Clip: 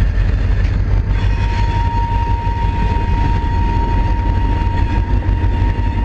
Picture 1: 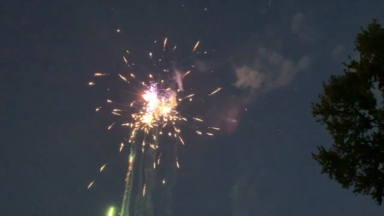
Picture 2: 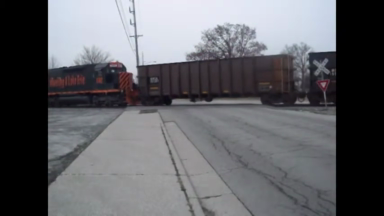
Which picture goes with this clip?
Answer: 2